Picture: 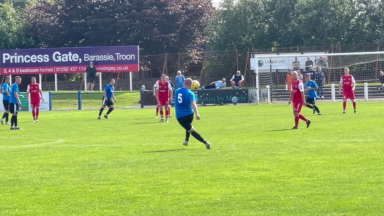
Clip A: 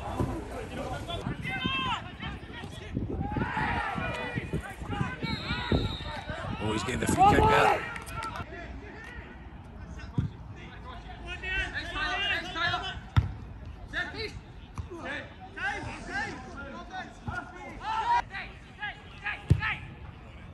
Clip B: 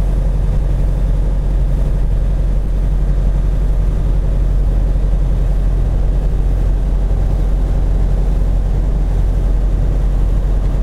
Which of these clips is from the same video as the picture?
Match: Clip A